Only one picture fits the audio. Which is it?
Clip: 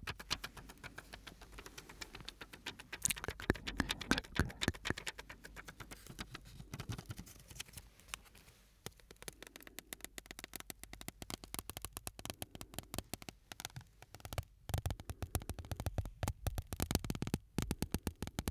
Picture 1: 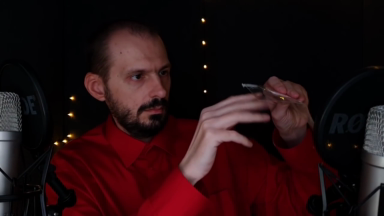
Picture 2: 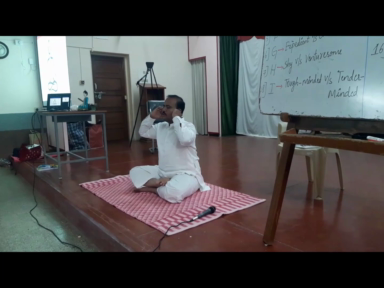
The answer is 1